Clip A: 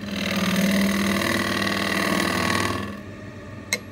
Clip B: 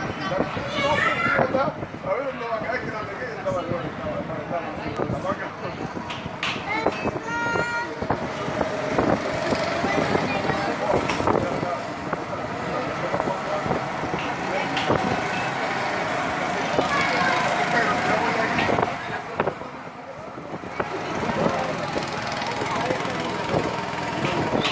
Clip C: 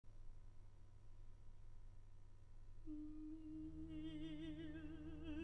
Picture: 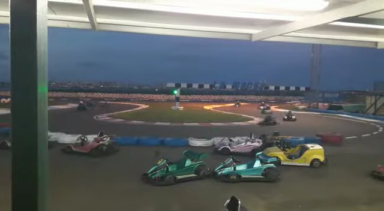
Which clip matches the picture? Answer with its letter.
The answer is B